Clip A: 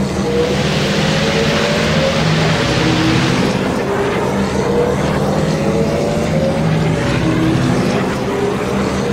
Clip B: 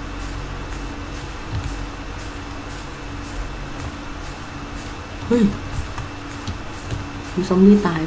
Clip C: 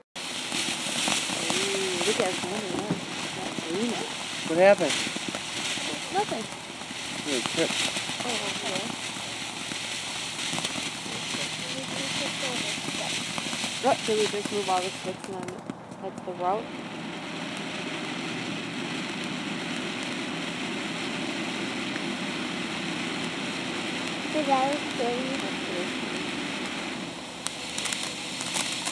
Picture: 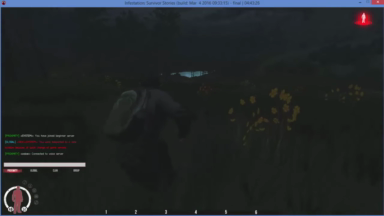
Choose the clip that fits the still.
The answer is B